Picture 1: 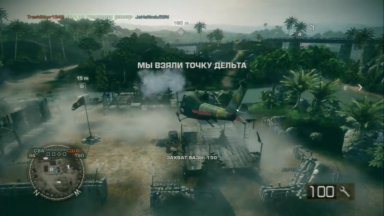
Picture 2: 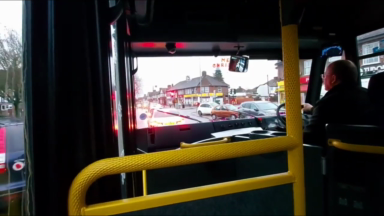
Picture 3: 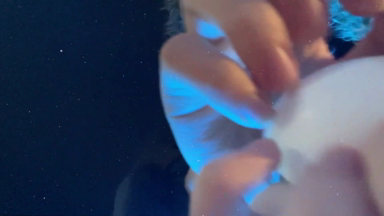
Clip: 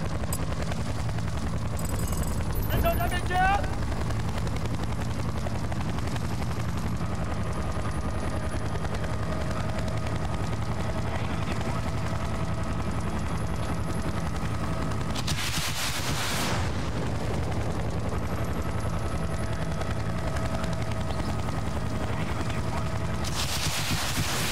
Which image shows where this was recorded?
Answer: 1